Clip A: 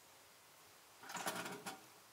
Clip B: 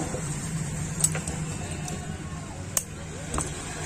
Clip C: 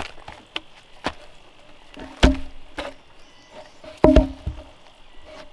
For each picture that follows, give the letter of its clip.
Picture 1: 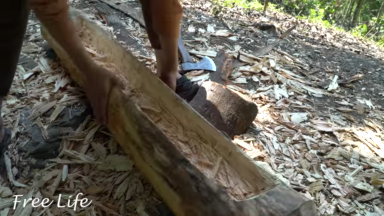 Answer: C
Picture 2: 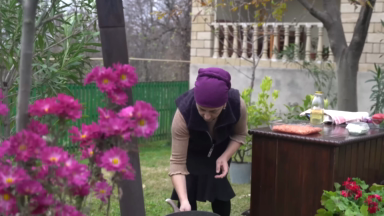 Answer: A